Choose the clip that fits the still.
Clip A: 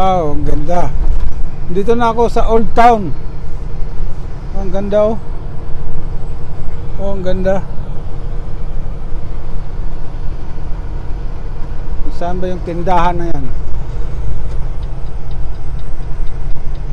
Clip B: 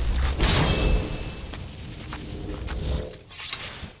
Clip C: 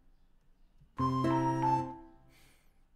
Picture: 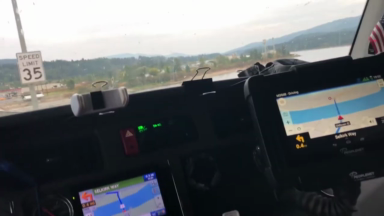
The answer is A